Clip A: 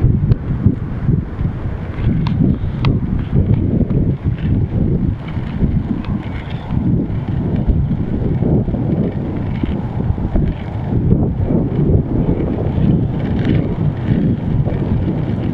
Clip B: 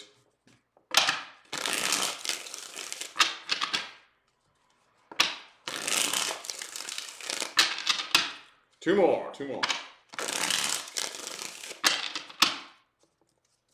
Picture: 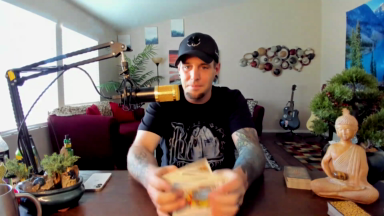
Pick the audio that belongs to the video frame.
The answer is B